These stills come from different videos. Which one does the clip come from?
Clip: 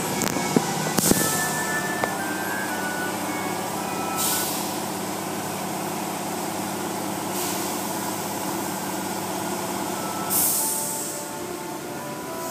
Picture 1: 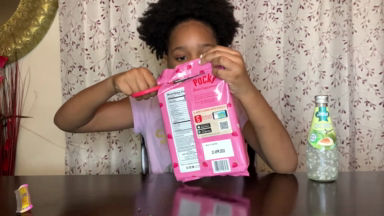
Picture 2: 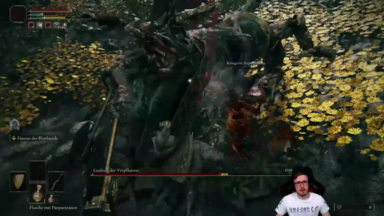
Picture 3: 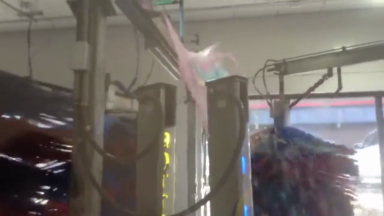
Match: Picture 3